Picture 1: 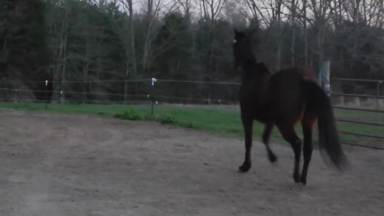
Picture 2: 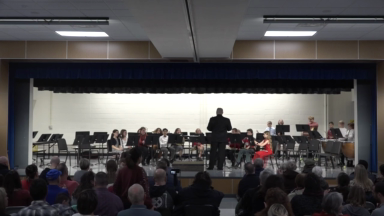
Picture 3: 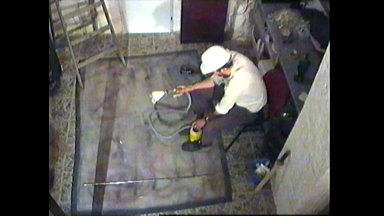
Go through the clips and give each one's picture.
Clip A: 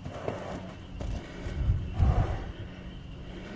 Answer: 1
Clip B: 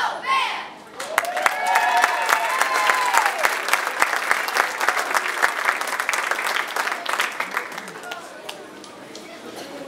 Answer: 2